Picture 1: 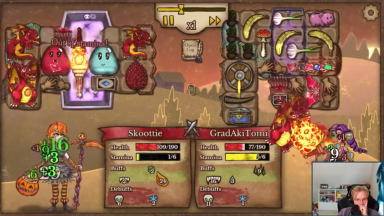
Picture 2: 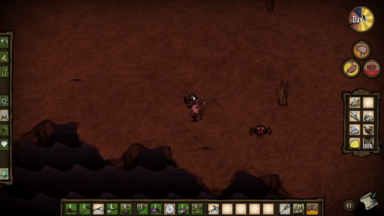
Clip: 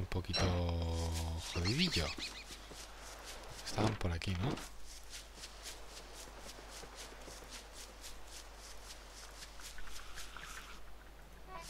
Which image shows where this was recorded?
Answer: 2